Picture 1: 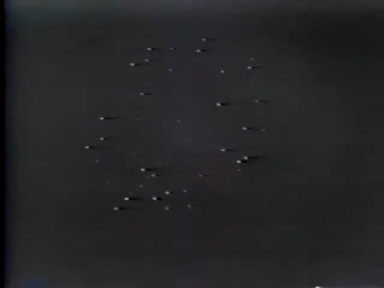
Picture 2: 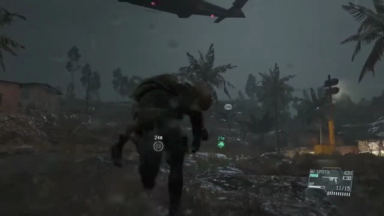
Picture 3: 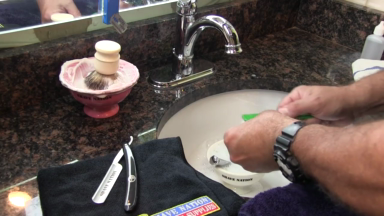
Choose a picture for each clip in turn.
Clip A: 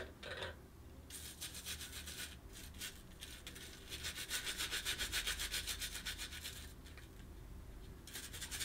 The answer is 3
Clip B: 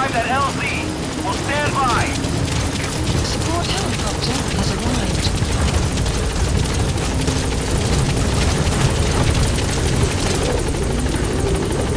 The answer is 2